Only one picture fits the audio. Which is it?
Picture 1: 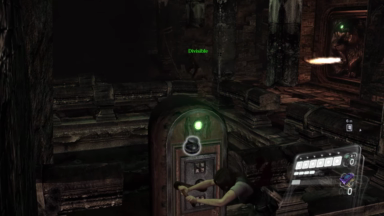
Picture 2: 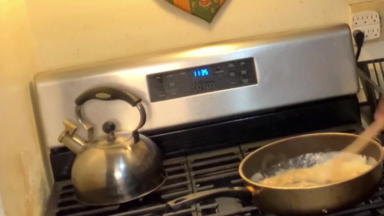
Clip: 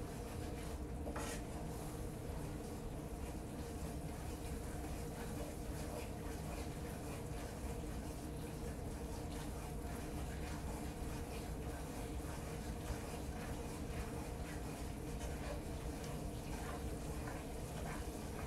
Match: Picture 2